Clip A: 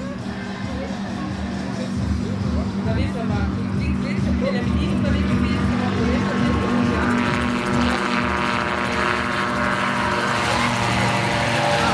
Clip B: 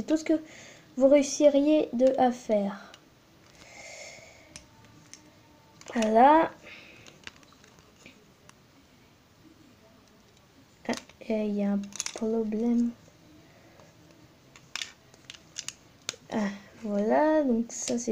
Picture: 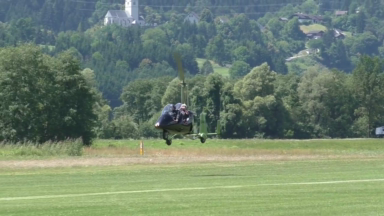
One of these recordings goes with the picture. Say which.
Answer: A